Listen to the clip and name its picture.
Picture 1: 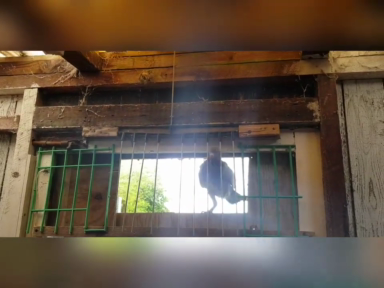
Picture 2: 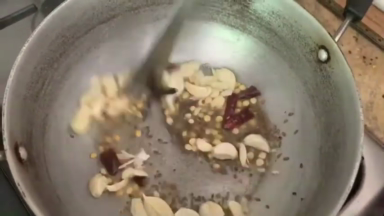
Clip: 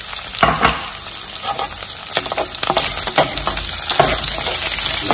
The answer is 2